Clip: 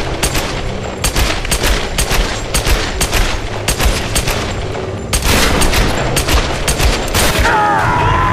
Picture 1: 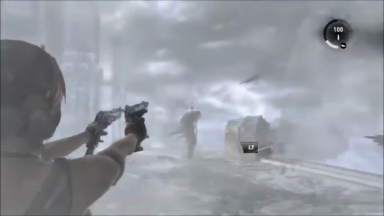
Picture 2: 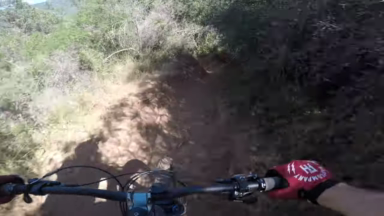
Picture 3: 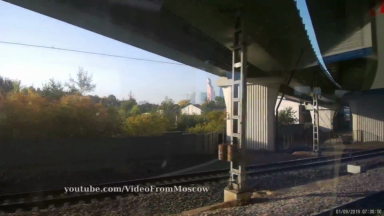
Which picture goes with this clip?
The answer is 1